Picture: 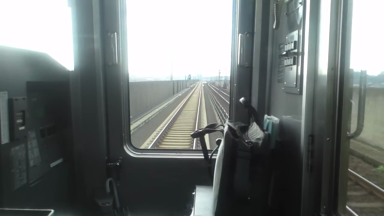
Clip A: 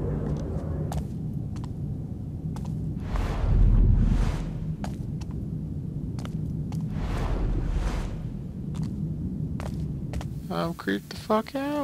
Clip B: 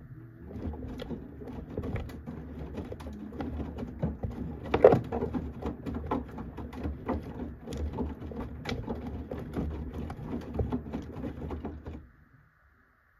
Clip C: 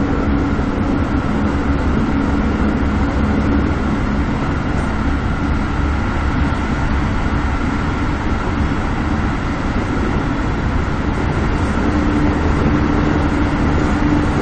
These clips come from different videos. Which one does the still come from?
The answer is C